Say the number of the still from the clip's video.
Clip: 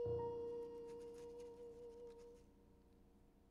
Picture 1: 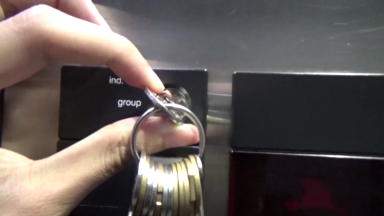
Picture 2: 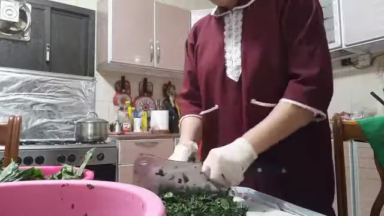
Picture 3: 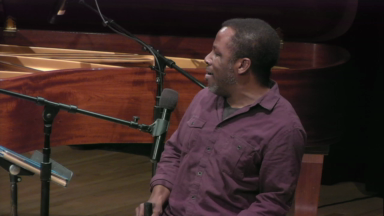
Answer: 3